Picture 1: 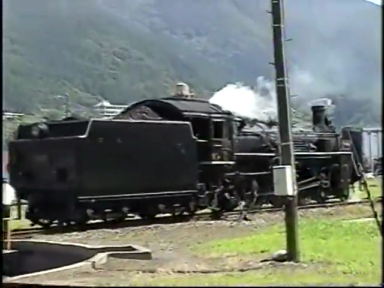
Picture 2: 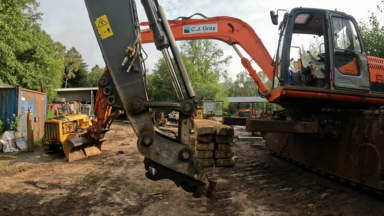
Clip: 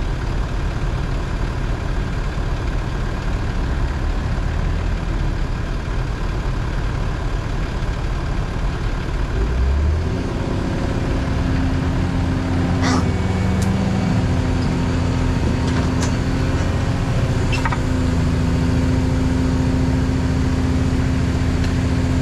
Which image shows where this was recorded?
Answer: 2